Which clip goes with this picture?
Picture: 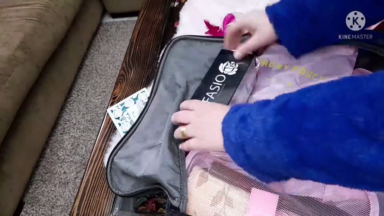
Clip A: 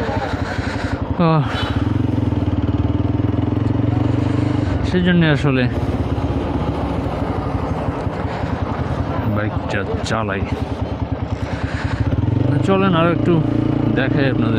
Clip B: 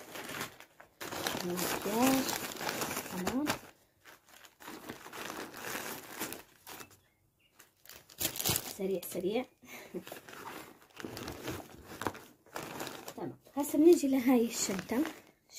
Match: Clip B